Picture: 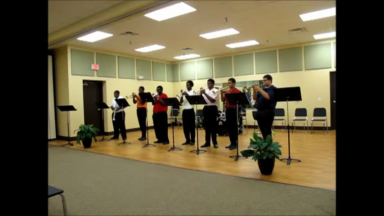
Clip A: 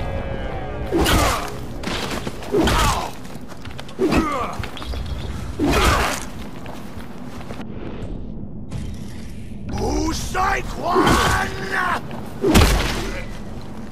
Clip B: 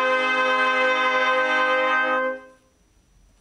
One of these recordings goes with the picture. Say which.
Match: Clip B